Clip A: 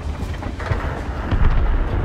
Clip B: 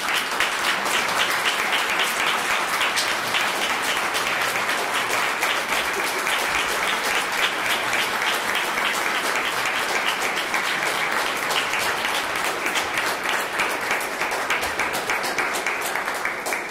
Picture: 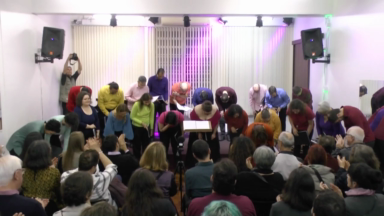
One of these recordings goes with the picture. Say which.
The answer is B